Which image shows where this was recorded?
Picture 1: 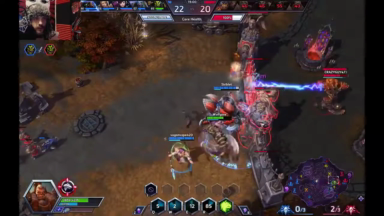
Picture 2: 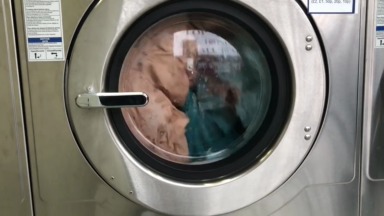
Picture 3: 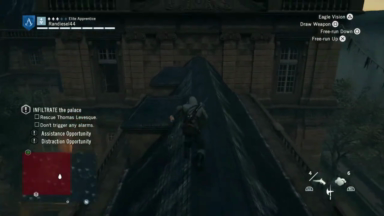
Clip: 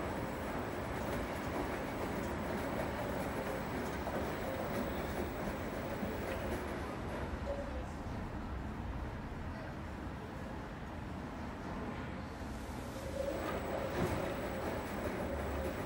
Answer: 2